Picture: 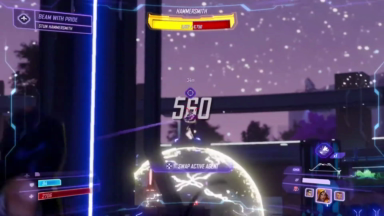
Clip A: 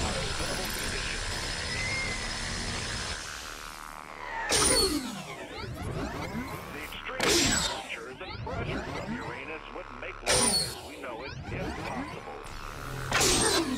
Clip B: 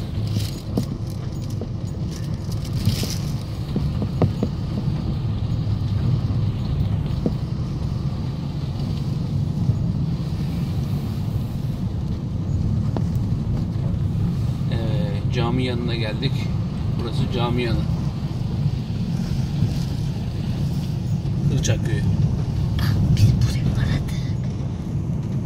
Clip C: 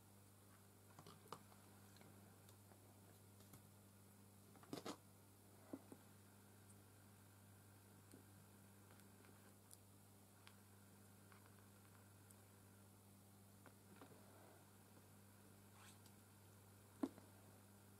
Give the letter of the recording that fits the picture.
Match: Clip A